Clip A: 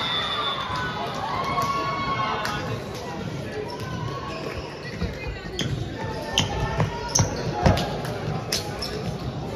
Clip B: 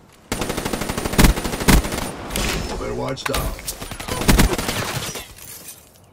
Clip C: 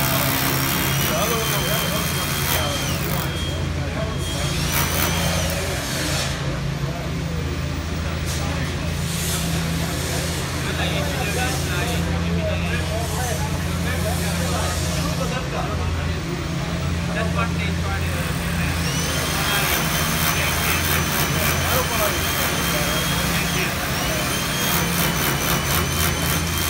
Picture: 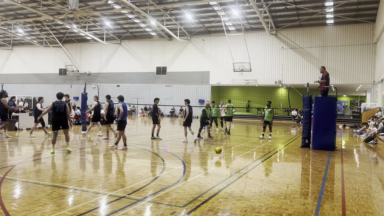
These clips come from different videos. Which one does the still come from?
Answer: A